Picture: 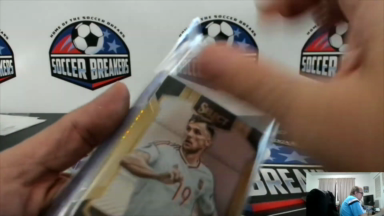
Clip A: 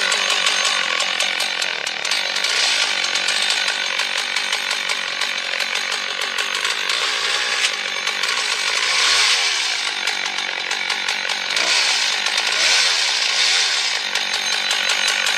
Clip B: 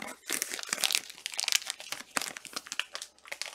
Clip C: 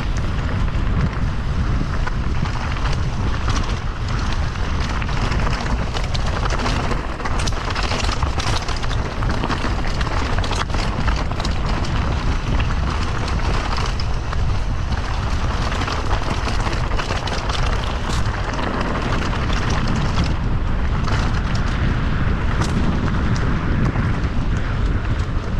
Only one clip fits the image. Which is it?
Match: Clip B